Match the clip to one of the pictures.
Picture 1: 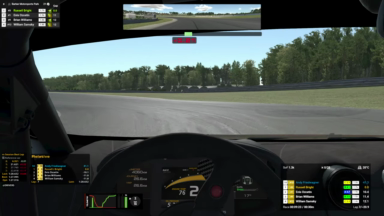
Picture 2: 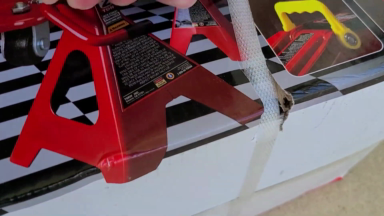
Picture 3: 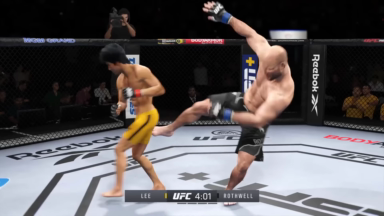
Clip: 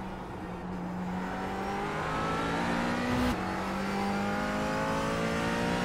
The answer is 1